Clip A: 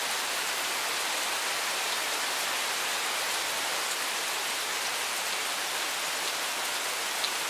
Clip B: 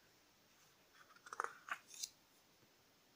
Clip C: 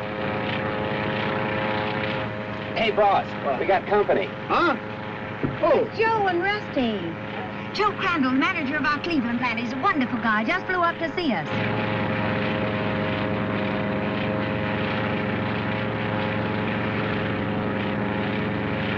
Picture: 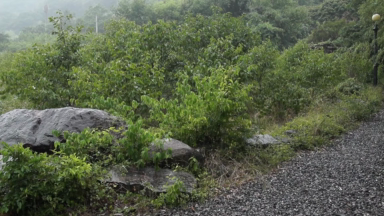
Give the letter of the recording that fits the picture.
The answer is A